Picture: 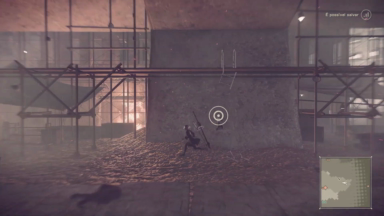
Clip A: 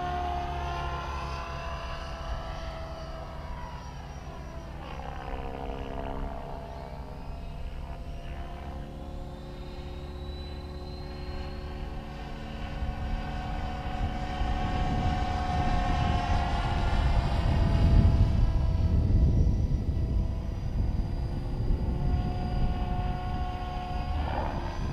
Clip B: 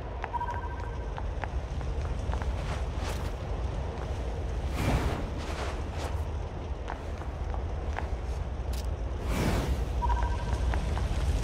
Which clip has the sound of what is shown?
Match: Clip B